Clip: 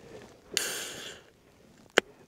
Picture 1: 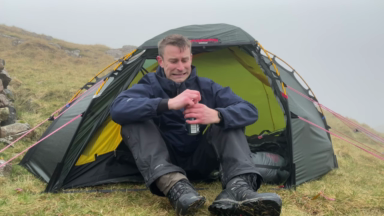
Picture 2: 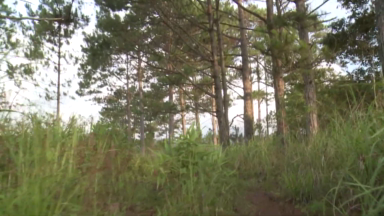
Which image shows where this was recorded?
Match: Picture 1